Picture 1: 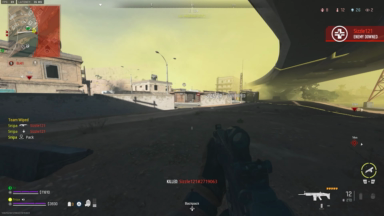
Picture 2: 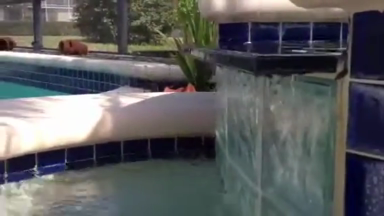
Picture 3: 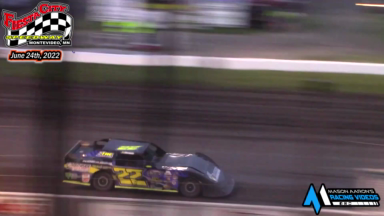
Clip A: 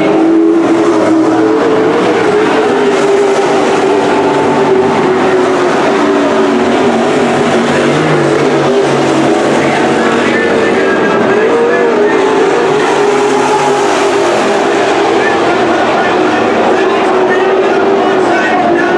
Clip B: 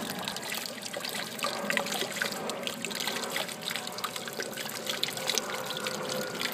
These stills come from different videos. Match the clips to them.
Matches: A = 3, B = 2